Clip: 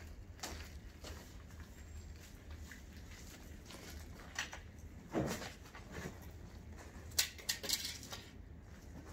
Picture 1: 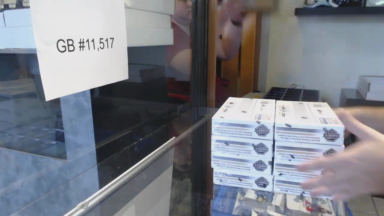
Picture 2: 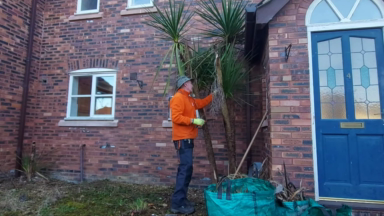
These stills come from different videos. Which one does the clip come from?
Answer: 2